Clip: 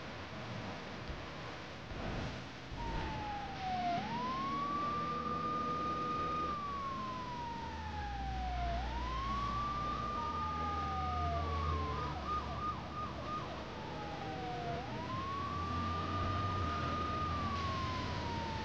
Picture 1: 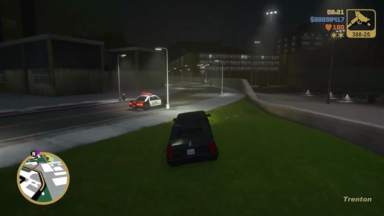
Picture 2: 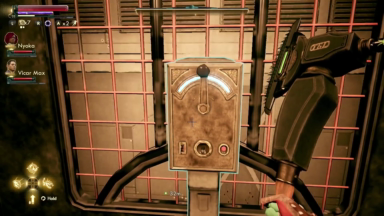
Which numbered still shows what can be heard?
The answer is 1